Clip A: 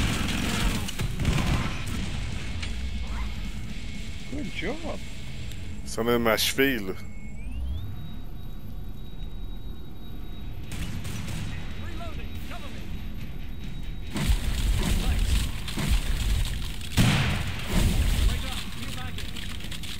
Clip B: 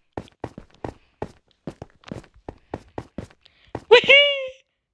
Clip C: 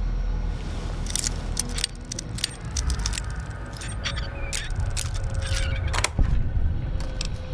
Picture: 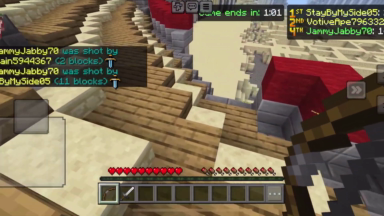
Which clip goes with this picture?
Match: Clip B